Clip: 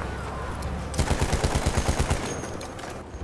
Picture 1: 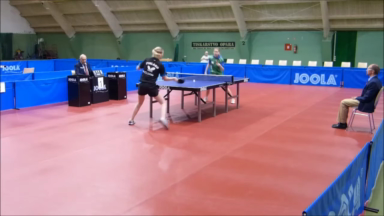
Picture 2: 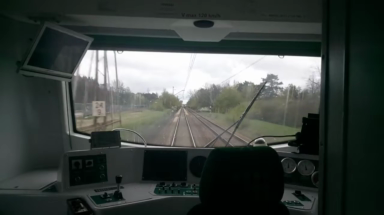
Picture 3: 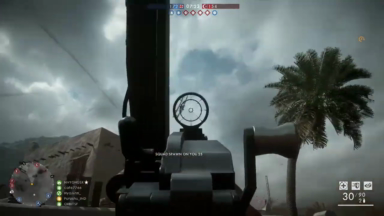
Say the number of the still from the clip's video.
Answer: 3